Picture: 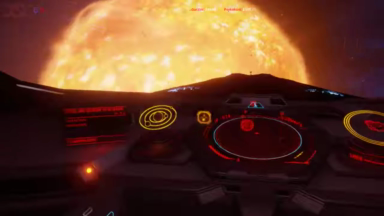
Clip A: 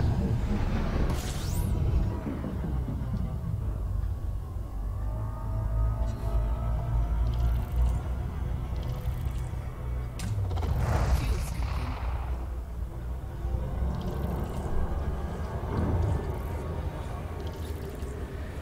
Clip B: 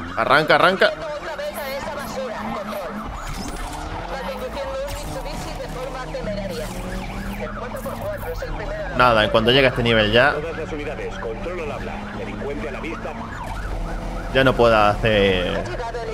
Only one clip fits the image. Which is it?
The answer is A